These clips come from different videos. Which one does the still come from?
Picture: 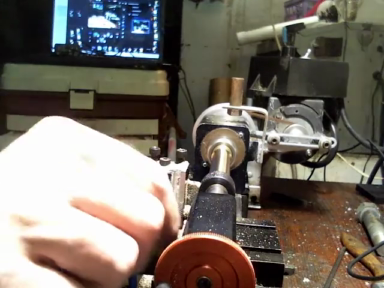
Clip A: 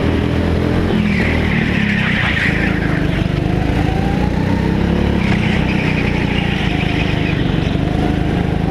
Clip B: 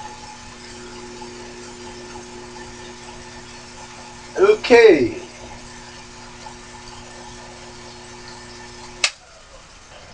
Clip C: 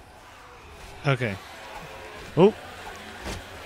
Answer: B